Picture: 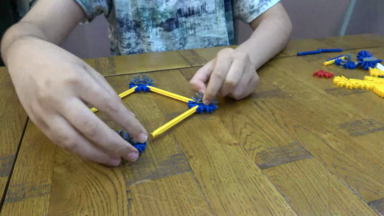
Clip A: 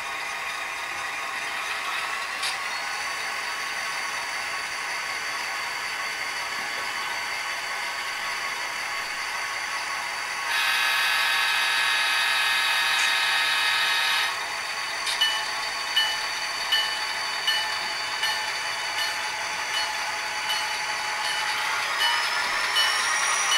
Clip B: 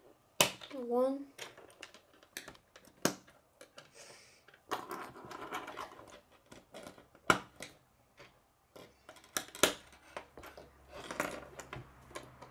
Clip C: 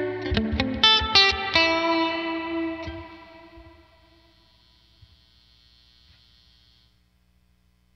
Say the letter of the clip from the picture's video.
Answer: B